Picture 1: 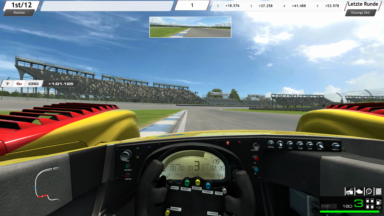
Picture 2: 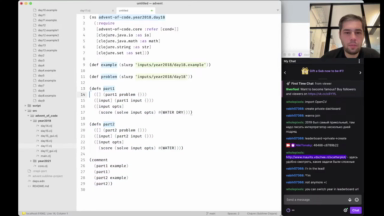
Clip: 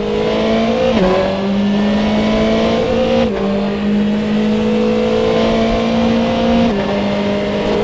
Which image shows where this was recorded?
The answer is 1